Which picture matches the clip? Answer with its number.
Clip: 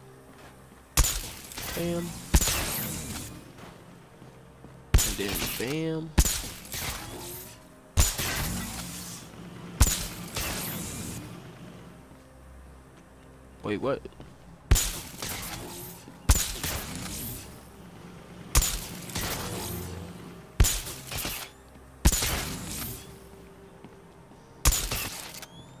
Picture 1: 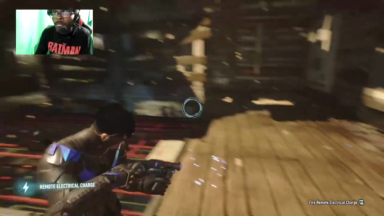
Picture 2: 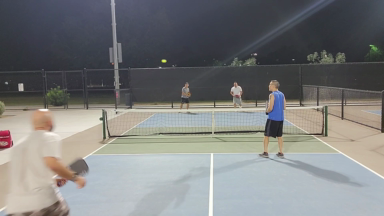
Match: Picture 1